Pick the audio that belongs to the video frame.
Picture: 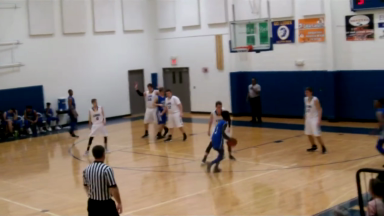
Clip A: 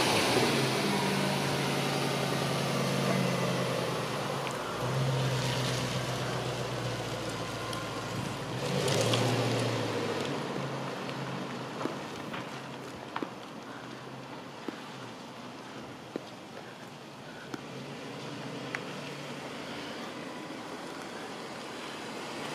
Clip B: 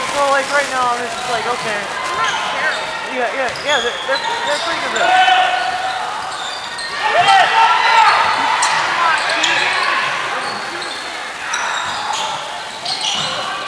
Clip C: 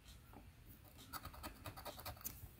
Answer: B